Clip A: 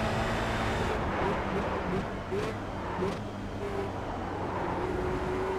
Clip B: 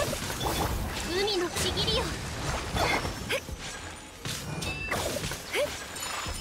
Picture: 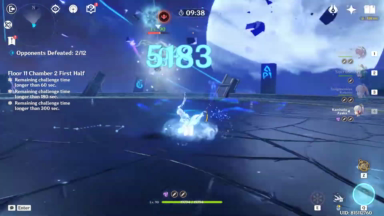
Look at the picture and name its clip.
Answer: B